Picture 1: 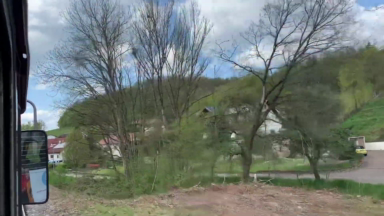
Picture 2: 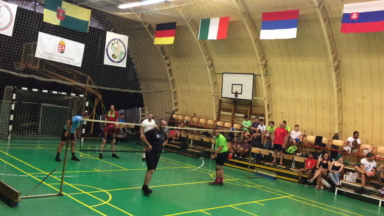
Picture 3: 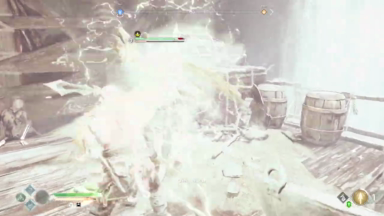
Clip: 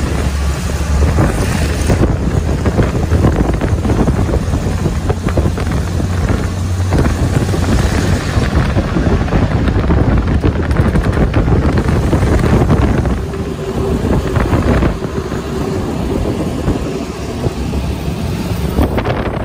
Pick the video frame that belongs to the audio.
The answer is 1